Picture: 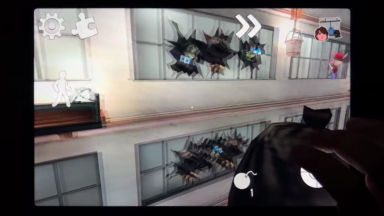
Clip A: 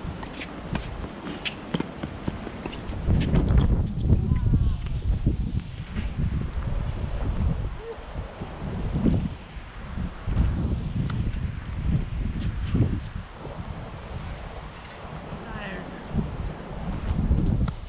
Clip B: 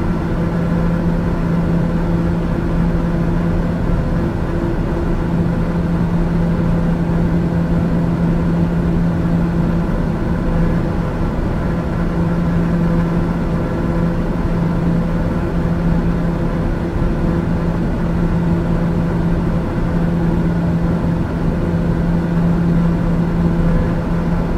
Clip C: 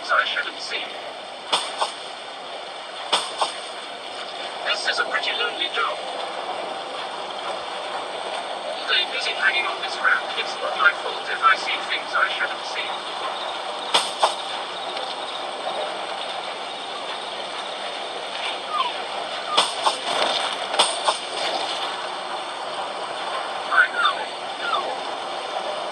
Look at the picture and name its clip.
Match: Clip C